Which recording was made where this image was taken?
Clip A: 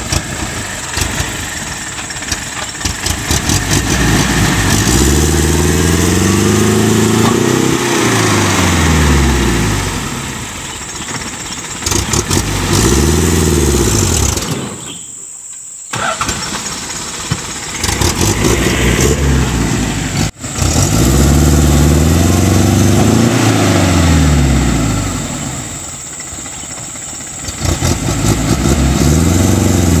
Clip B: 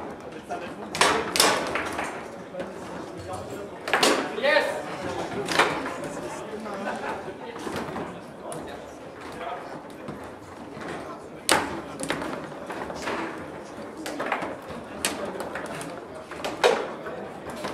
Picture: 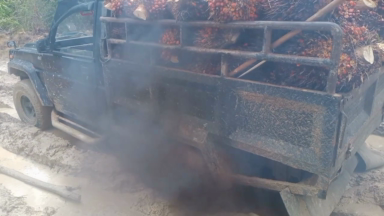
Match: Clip A